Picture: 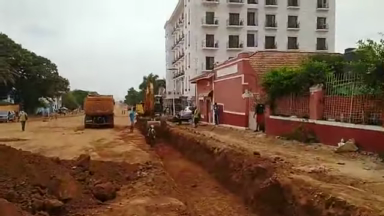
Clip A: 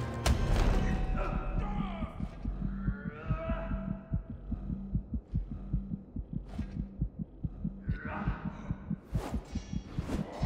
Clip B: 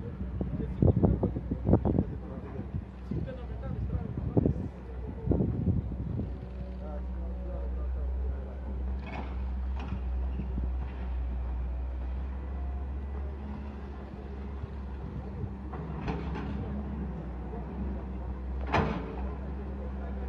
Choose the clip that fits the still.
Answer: B